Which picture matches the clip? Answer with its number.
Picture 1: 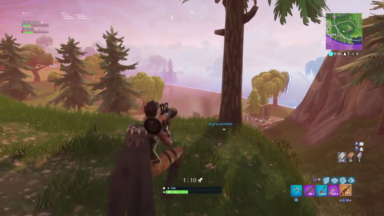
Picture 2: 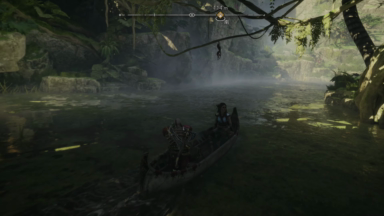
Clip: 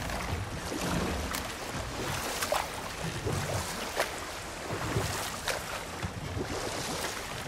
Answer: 2